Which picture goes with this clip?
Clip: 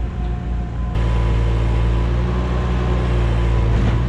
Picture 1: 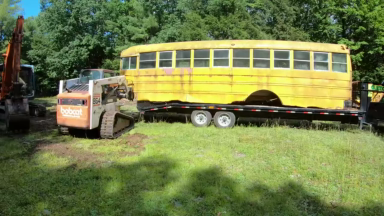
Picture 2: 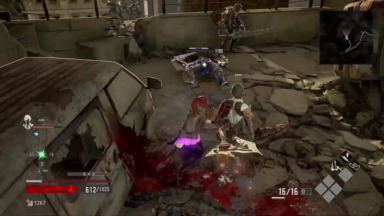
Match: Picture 1